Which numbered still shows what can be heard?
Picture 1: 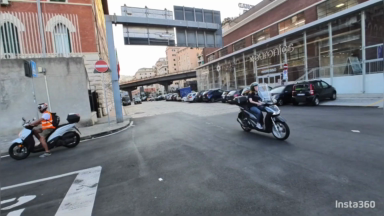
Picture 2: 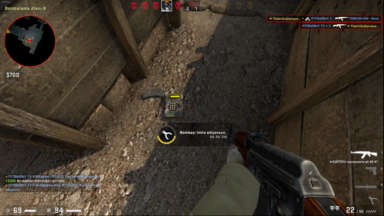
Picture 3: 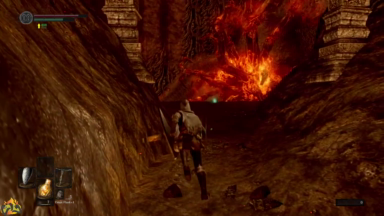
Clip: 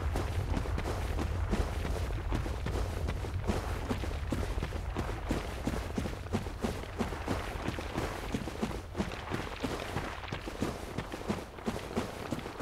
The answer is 3